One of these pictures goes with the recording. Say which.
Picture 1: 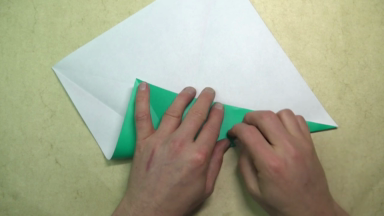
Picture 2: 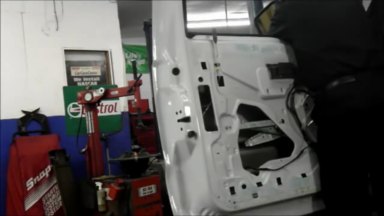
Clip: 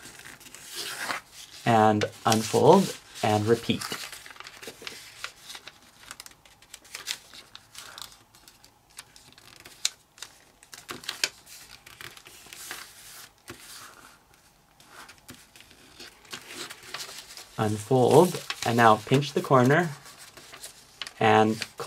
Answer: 1